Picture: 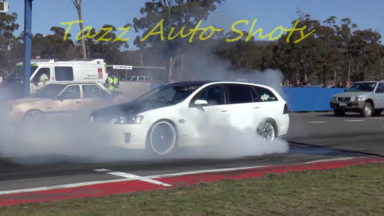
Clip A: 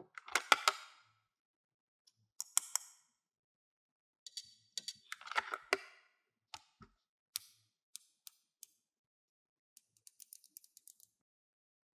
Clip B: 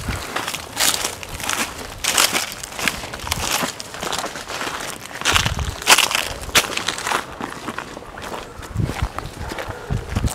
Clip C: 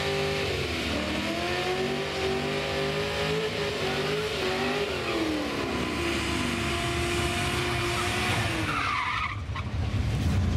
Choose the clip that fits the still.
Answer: C